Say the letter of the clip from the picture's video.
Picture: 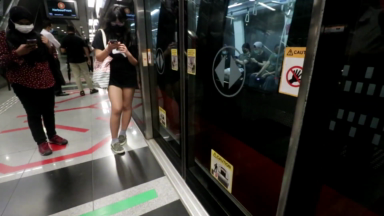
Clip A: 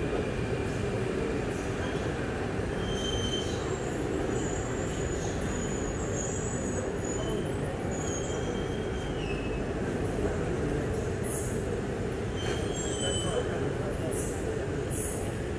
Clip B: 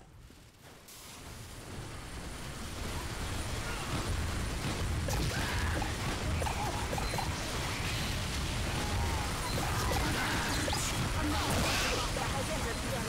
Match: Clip A